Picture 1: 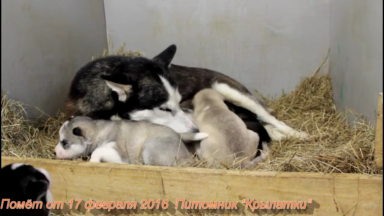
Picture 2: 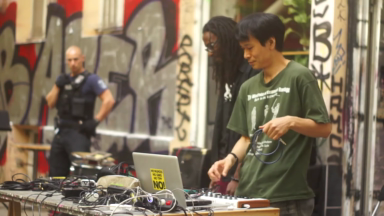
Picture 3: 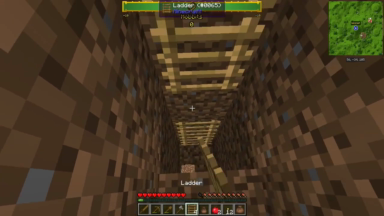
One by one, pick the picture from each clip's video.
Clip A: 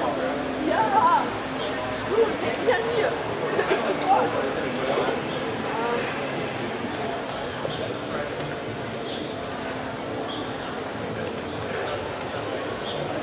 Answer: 2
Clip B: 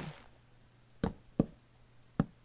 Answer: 3